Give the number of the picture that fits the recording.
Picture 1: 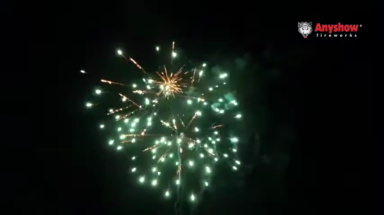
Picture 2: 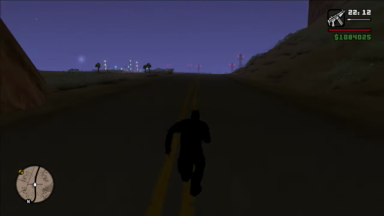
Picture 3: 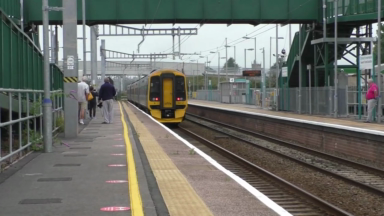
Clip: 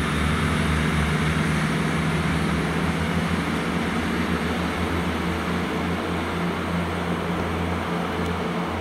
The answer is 3